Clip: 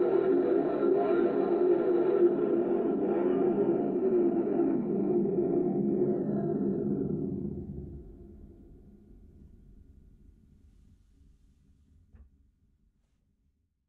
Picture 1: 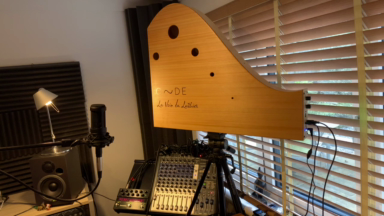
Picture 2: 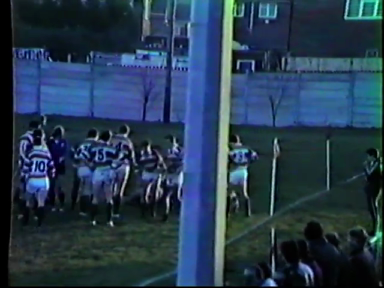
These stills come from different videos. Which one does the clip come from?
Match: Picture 1